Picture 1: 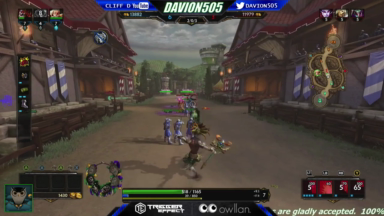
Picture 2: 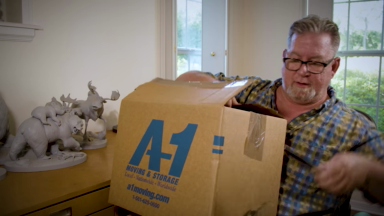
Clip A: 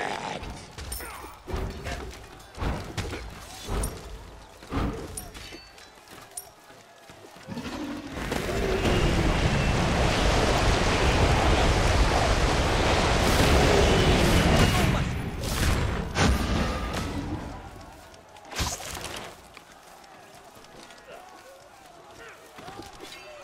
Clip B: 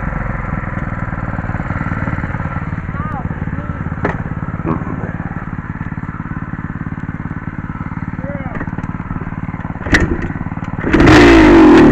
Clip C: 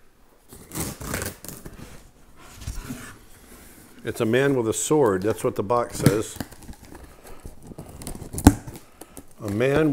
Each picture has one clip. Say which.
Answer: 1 A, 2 C